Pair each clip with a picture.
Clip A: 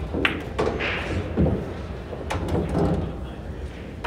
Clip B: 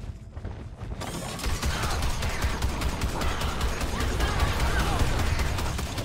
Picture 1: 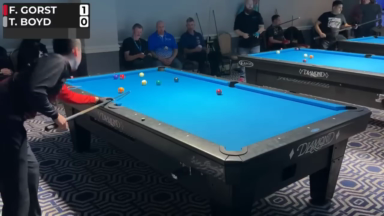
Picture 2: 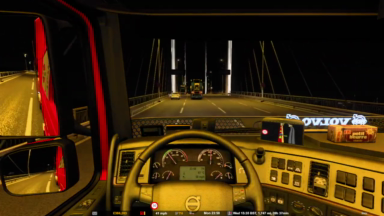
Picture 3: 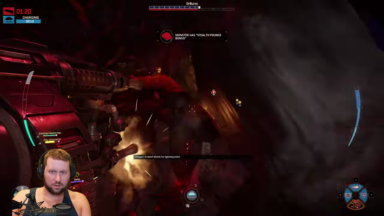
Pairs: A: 1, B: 3